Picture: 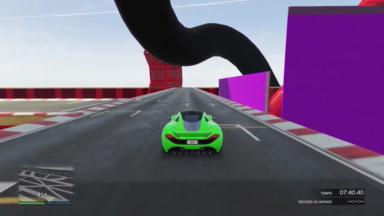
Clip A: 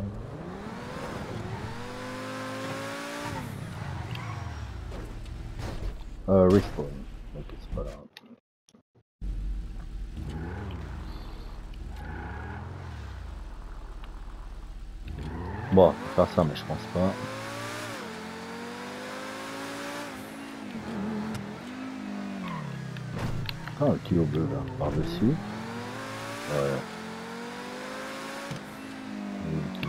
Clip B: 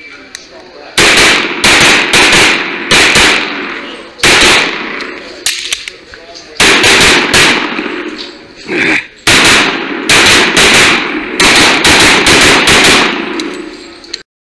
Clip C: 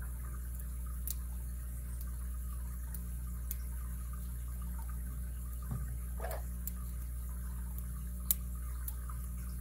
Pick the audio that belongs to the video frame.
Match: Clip A